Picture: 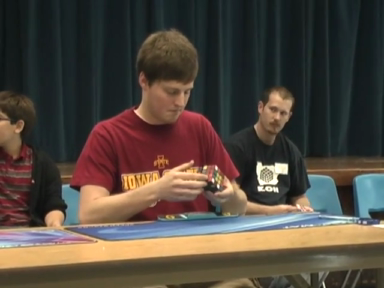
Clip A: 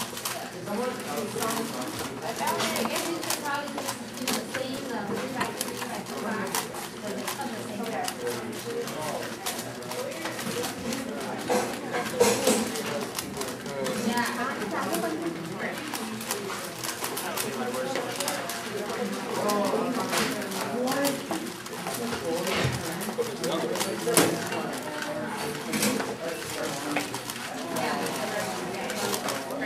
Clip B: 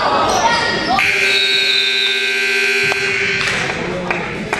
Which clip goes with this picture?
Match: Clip A